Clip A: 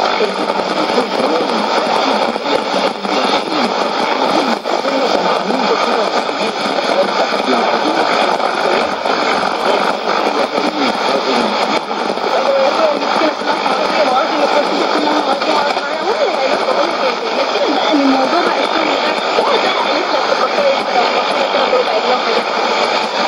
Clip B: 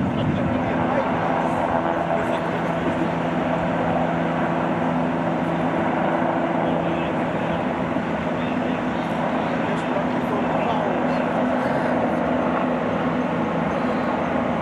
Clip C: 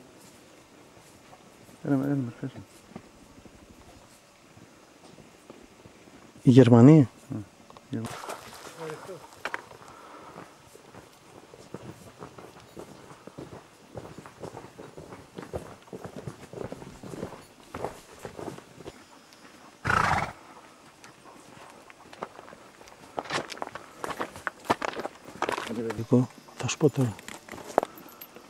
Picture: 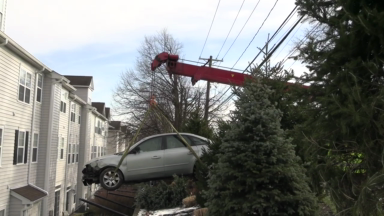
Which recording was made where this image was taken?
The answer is B